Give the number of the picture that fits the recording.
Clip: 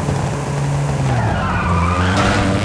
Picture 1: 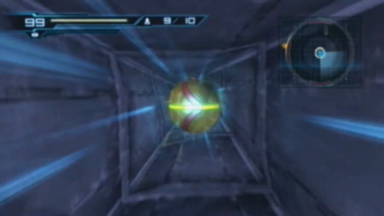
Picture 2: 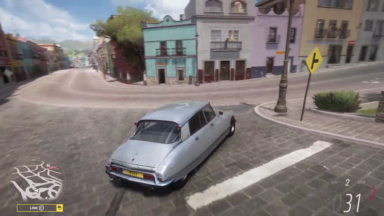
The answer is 2